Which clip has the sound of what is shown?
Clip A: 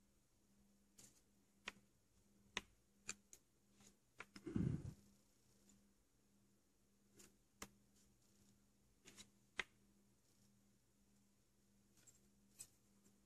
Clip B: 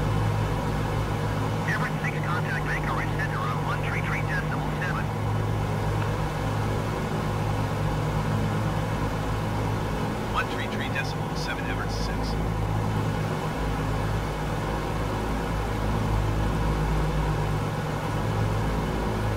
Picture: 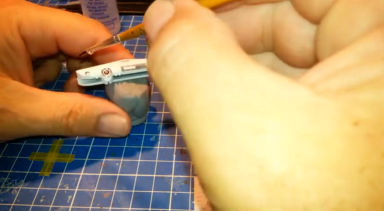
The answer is A